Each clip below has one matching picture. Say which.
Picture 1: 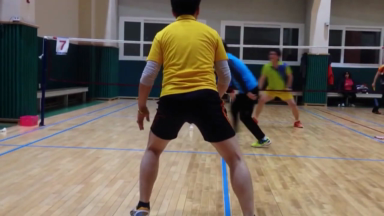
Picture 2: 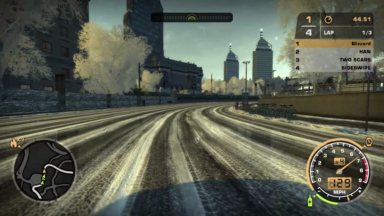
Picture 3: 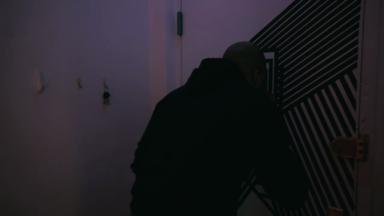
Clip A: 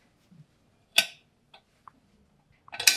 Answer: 3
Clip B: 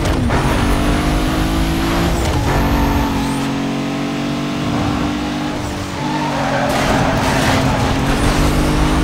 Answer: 2